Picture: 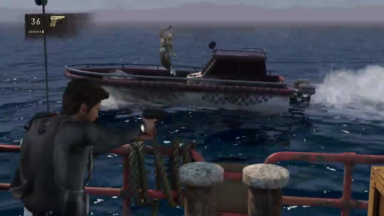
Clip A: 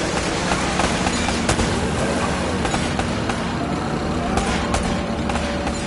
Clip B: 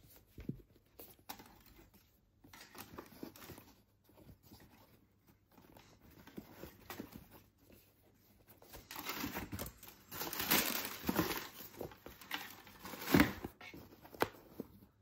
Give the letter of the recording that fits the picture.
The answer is A